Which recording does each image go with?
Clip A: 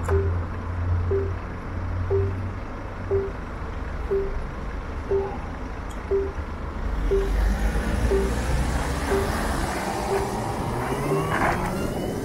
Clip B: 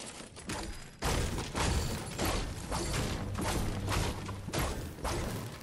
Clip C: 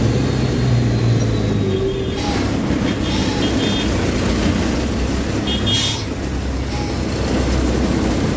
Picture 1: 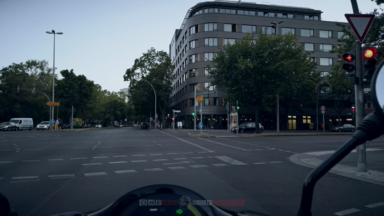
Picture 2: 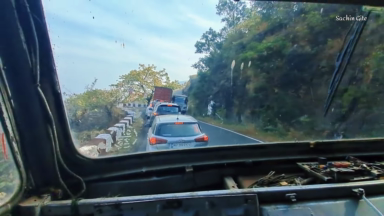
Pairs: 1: A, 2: C